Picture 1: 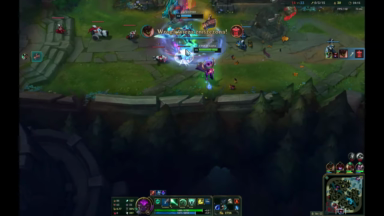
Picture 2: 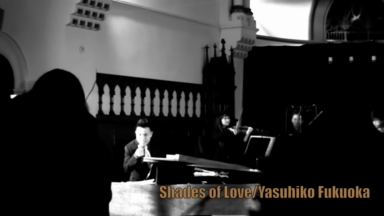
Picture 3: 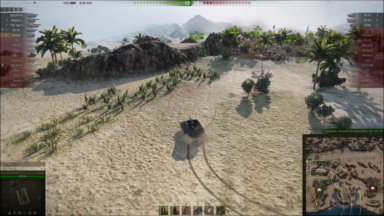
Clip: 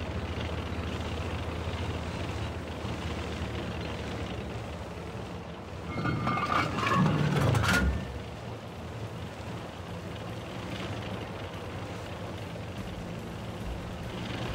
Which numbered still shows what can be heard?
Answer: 3